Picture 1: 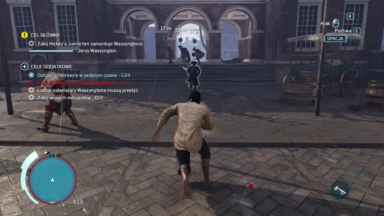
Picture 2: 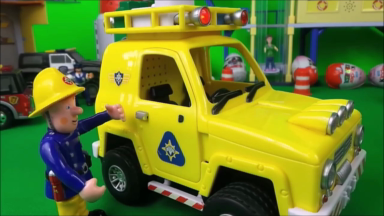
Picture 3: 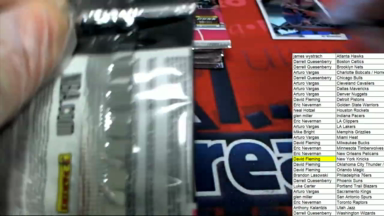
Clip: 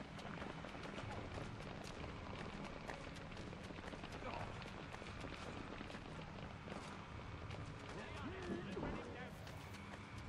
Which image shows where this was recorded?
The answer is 1